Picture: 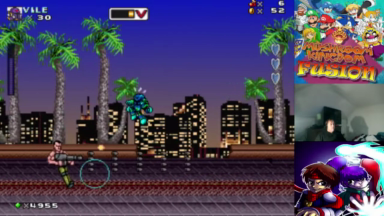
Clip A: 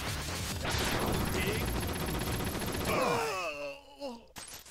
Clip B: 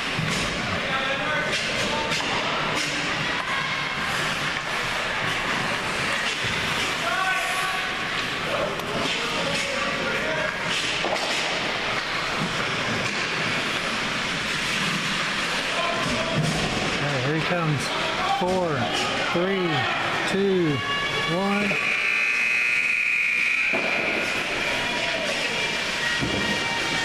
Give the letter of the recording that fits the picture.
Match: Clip A